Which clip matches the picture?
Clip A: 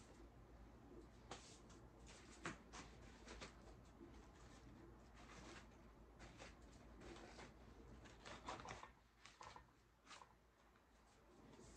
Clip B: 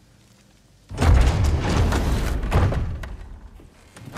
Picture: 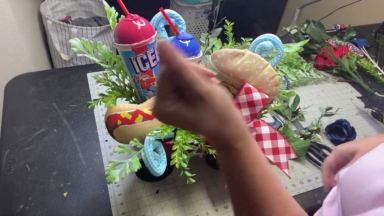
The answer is A